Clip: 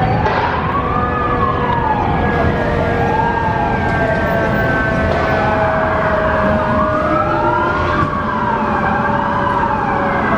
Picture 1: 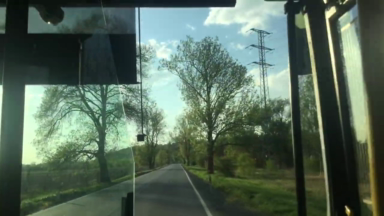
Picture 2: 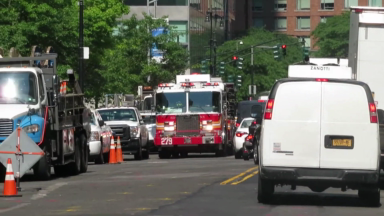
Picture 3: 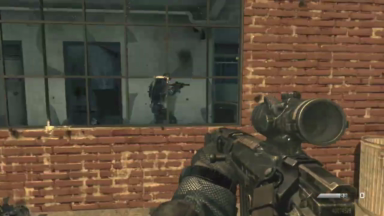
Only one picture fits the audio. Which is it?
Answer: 2